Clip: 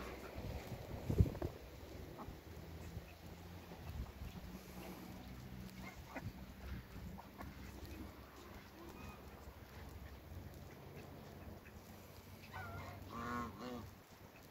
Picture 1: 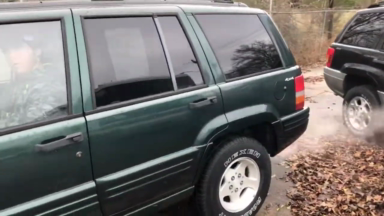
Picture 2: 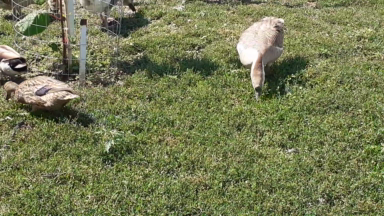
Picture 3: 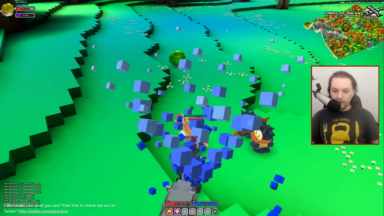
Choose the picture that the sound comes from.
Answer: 2